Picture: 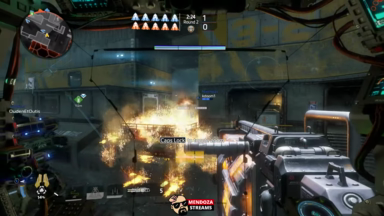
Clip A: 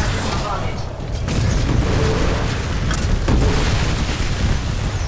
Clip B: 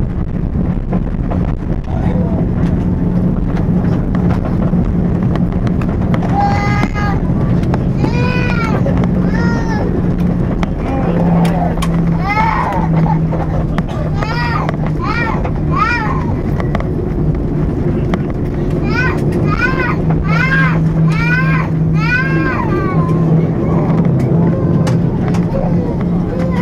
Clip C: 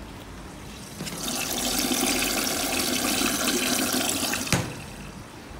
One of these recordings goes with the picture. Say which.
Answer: A